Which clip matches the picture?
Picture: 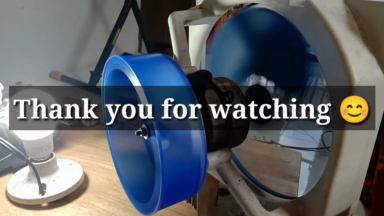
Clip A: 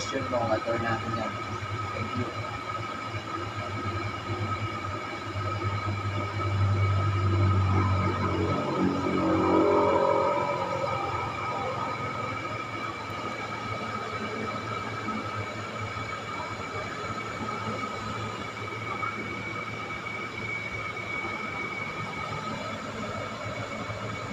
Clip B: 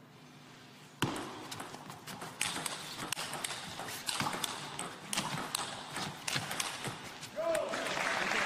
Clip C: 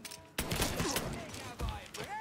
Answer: A